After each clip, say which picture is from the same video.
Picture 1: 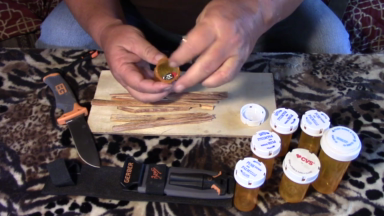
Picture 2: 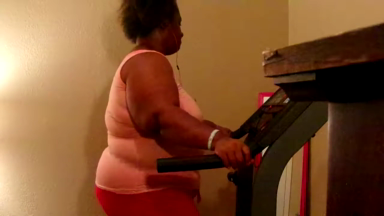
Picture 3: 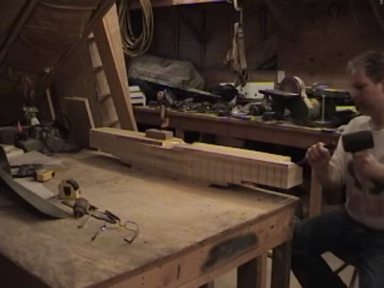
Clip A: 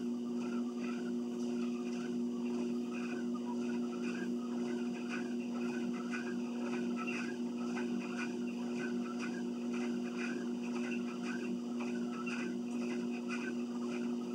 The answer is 2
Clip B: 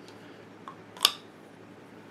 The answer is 1